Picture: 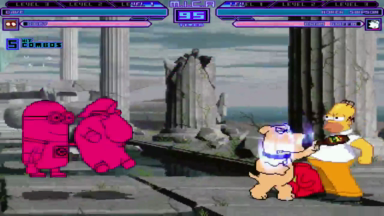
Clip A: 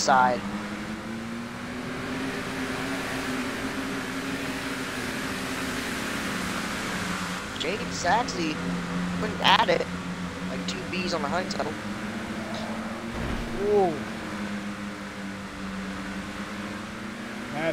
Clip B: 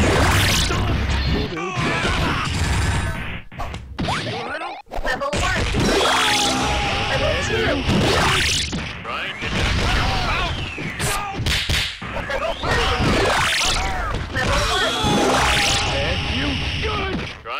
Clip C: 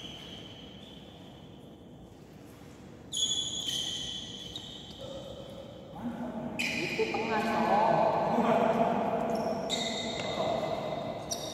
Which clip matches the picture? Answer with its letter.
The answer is B